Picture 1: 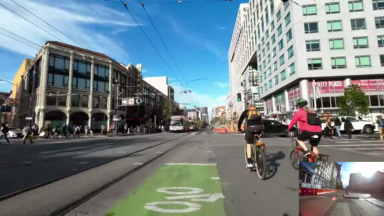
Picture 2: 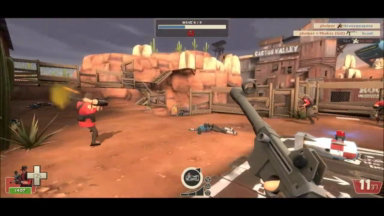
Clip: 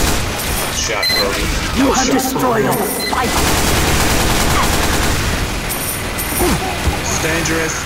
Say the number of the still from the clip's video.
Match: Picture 2